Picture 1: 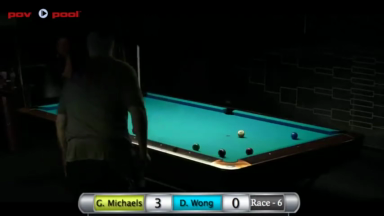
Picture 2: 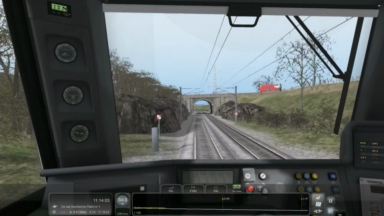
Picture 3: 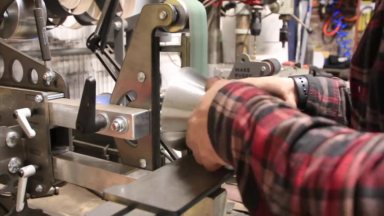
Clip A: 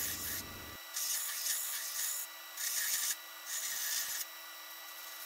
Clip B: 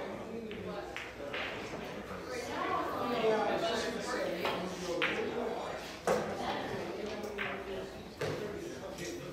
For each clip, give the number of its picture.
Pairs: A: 3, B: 1